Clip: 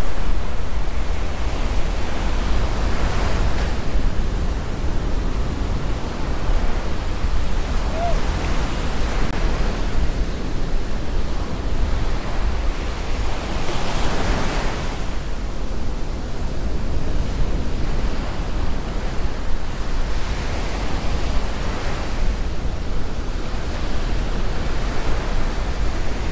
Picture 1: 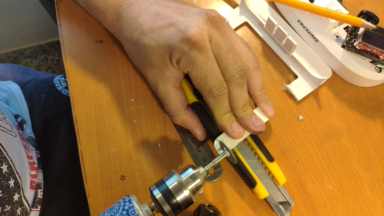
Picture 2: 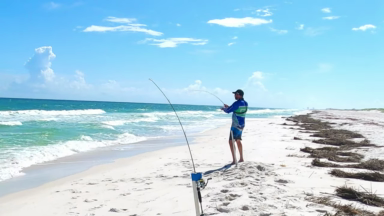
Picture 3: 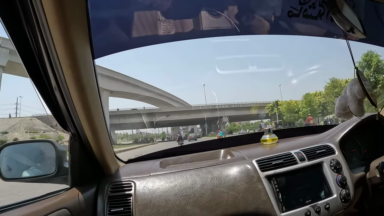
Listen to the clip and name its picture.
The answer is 2